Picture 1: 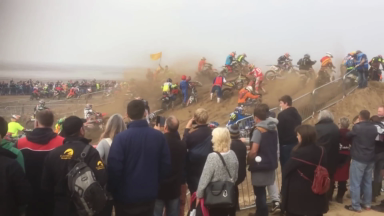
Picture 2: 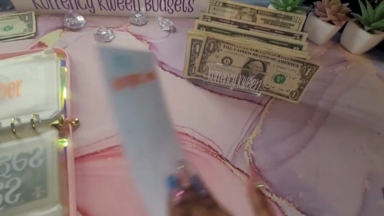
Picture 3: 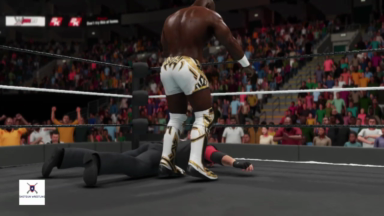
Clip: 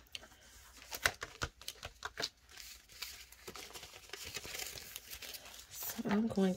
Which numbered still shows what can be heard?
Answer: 2